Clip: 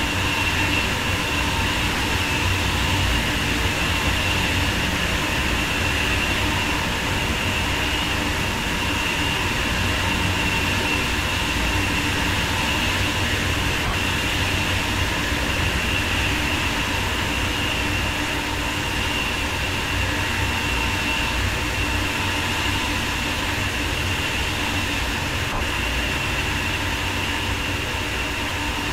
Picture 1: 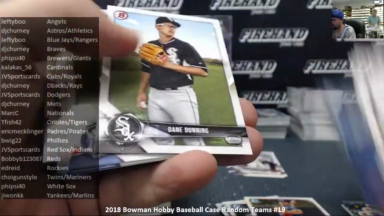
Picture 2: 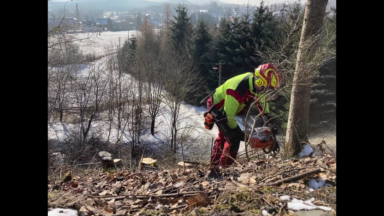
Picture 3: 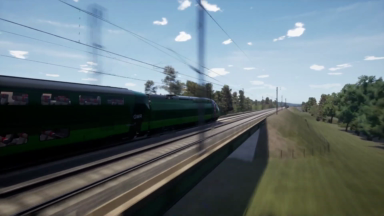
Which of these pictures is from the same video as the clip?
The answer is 3